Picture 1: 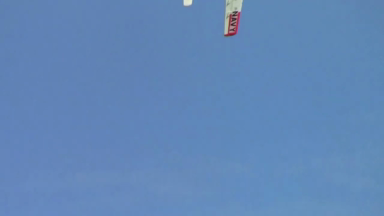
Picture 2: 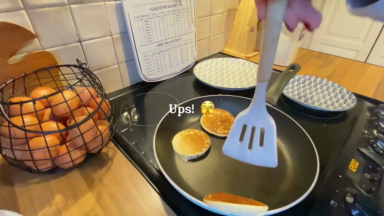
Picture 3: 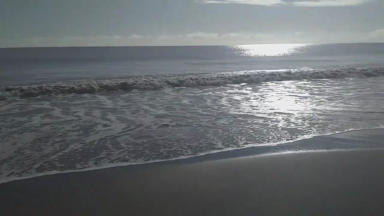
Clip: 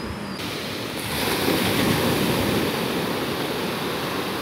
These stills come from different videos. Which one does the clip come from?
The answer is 3